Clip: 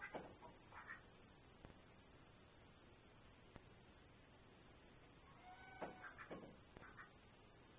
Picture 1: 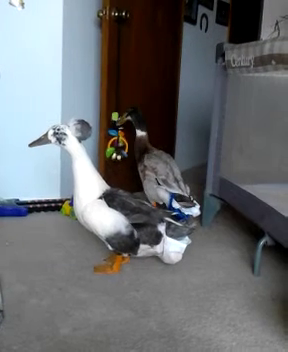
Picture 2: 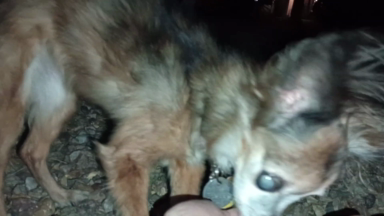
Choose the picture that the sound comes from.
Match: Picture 1